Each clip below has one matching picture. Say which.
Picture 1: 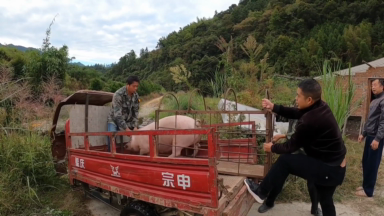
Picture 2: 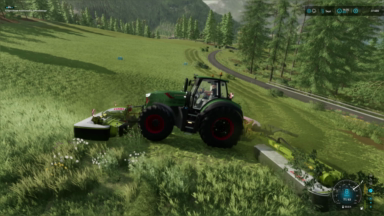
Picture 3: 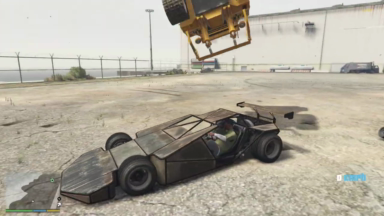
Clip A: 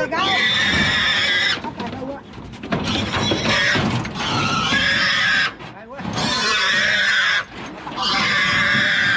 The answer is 1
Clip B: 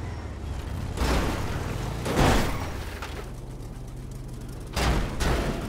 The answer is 3